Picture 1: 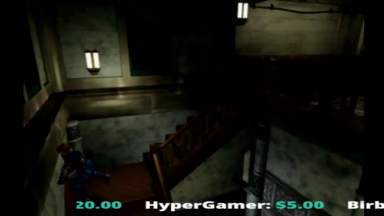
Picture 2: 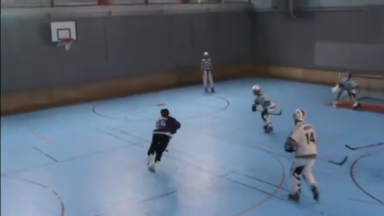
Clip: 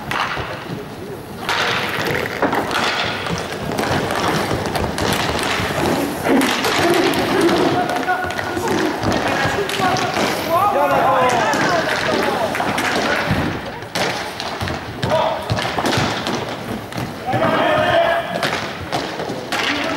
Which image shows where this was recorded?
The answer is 2